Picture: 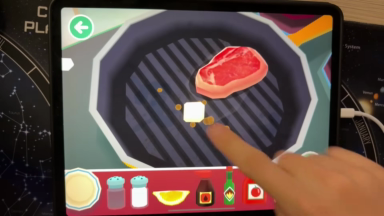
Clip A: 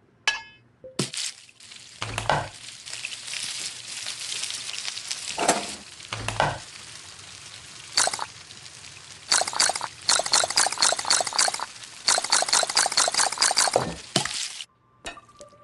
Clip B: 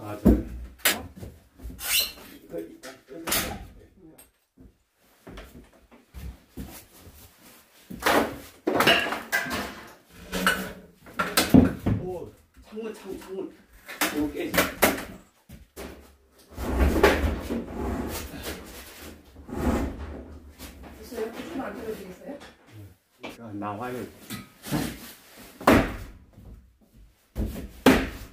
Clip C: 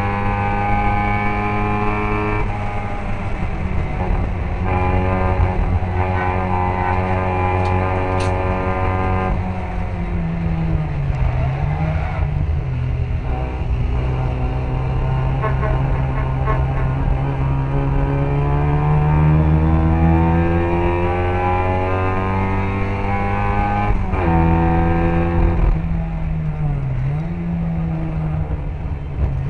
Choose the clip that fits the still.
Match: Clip A